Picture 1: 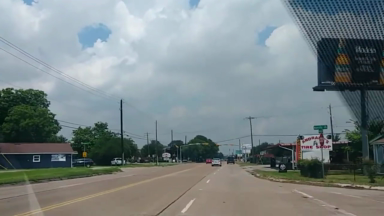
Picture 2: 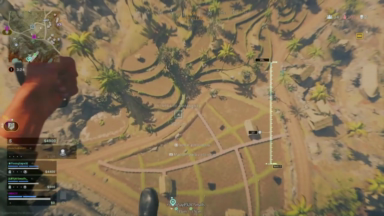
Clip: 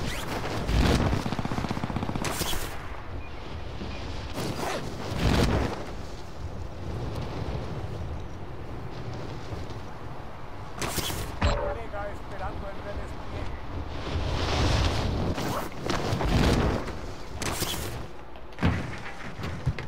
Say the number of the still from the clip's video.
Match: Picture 2